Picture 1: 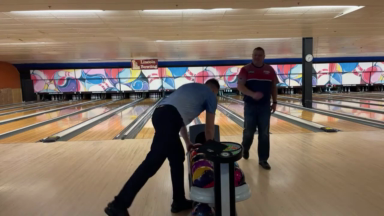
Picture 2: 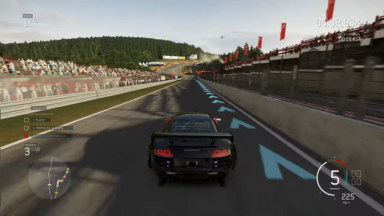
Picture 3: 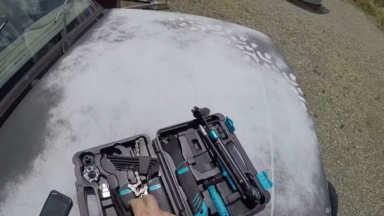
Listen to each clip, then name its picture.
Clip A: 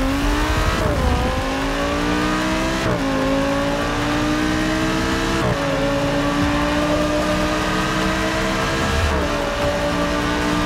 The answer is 2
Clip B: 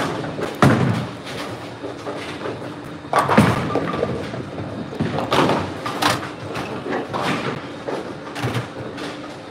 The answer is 1